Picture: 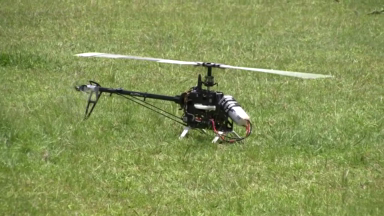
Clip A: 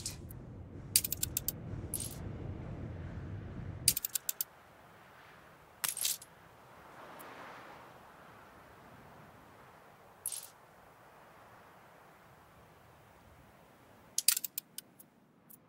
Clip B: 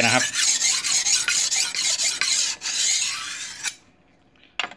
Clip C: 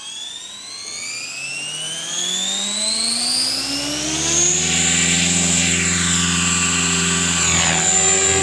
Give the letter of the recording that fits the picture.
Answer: C